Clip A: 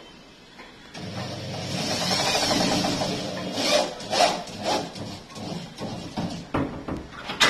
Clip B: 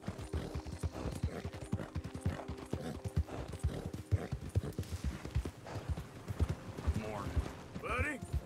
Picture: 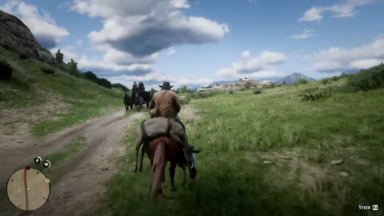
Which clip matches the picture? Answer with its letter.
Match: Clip B